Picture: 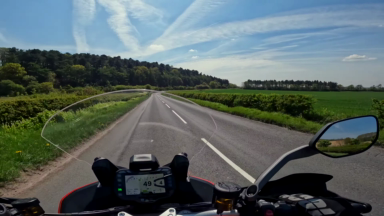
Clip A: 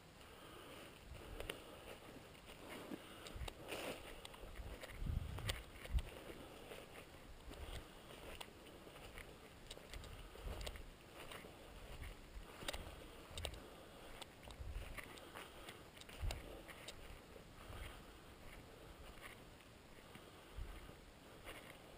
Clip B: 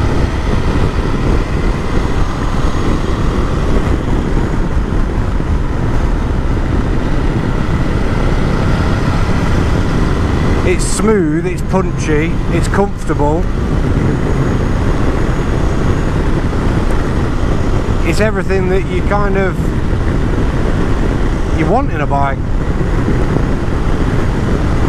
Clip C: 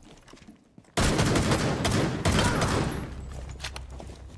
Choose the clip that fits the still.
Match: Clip B